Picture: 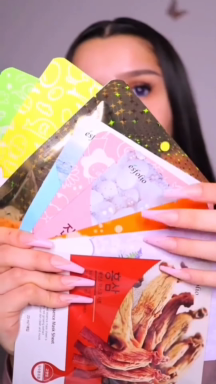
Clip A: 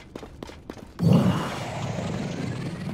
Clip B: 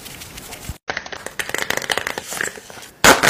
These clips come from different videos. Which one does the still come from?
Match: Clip B